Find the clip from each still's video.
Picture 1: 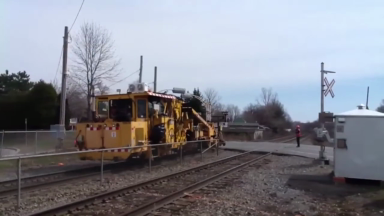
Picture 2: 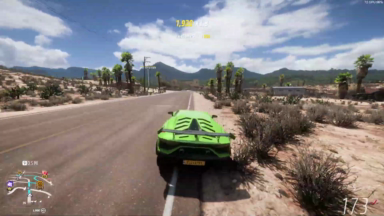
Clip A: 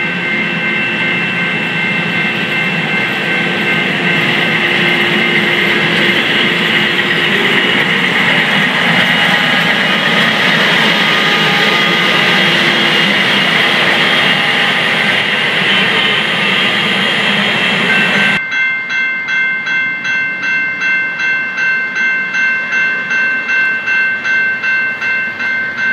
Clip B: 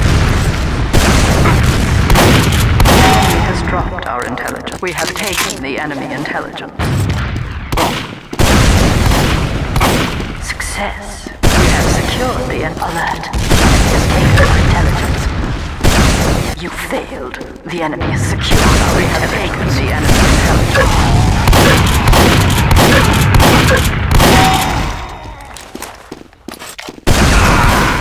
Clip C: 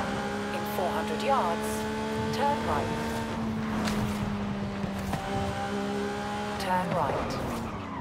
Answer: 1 A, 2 C